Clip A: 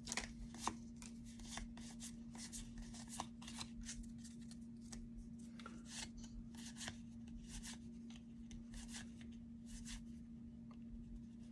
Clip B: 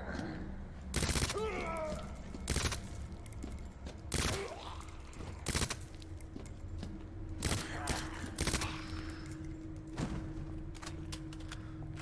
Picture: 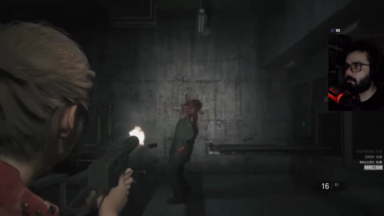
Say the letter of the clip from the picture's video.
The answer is B